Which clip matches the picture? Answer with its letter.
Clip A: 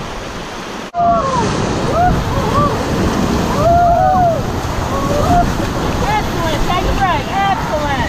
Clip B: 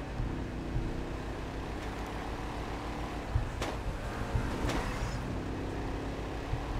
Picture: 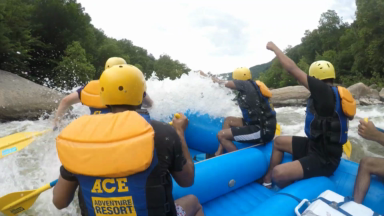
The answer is A